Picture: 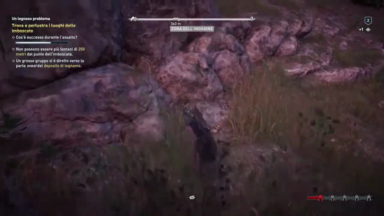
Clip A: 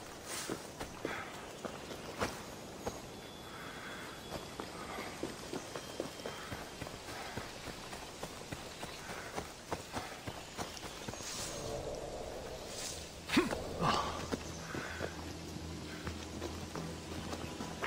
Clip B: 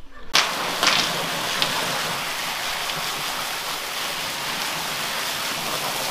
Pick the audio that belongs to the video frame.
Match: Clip A